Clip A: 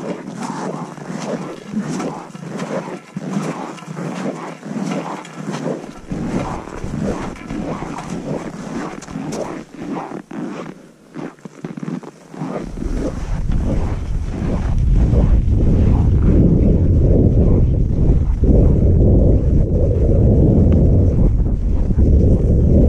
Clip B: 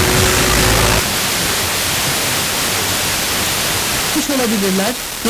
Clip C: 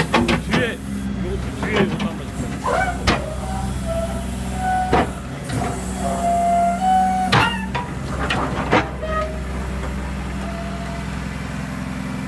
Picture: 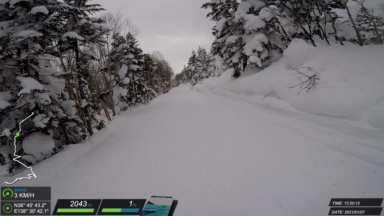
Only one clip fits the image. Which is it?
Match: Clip A